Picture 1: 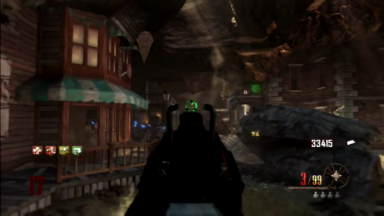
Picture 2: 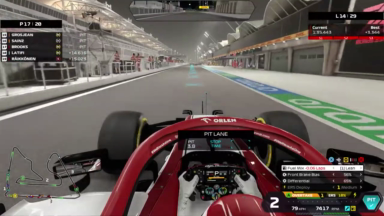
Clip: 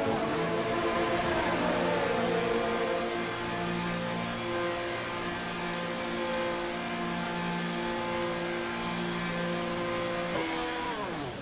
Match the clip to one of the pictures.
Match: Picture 2